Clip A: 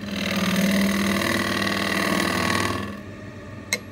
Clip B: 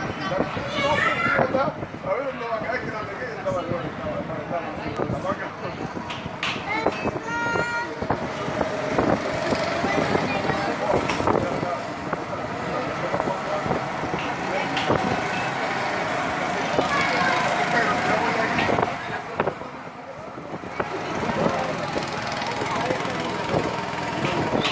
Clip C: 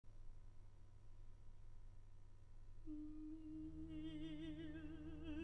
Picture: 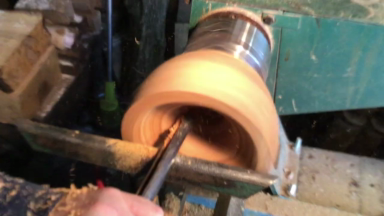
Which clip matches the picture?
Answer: A